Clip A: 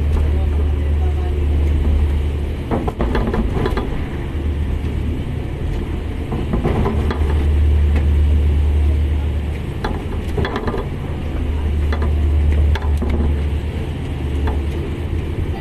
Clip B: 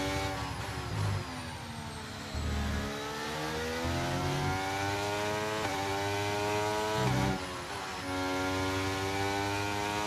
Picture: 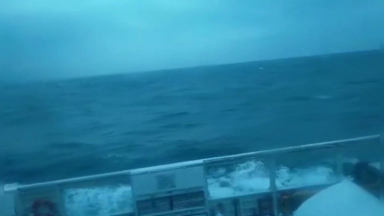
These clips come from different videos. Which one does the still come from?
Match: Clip A